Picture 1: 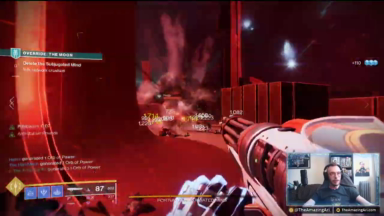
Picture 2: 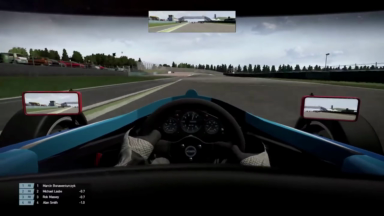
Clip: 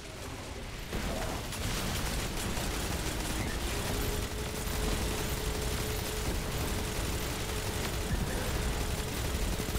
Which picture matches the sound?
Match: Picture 1